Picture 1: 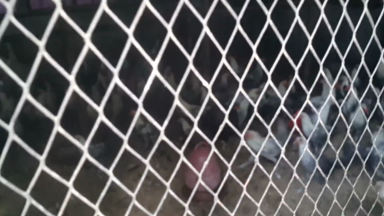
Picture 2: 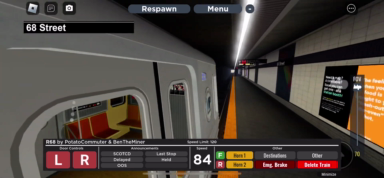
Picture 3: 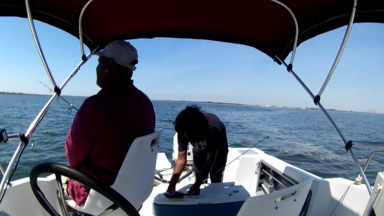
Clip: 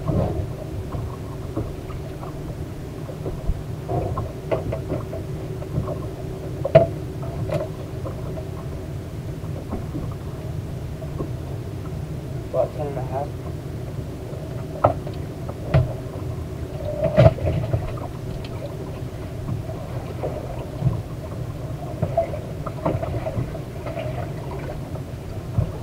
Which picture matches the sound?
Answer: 3